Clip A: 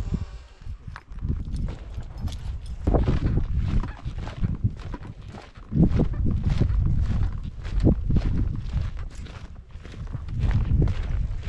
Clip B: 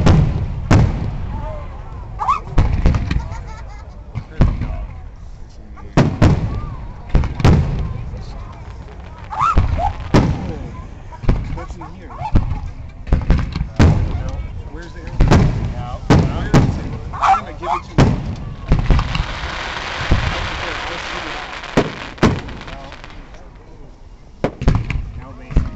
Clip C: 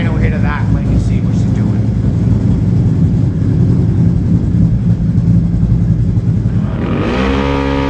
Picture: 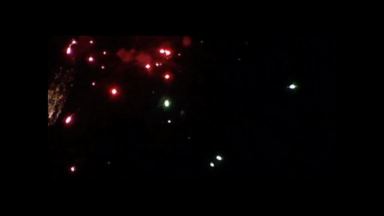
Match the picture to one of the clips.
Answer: B